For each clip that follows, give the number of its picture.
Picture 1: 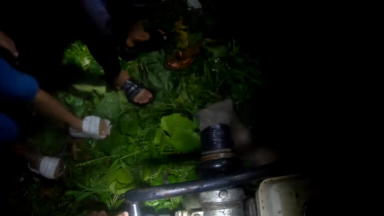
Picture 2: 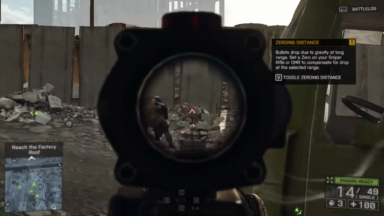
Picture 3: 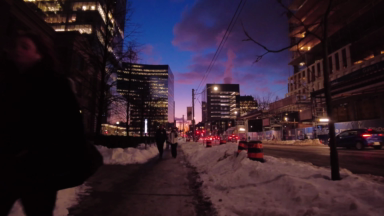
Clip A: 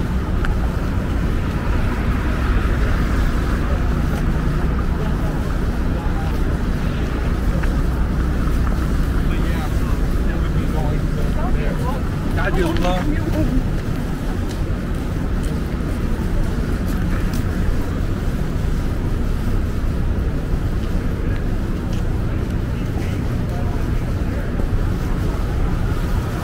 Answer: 3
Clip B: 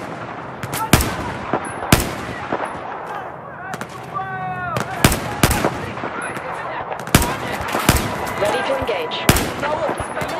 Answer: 2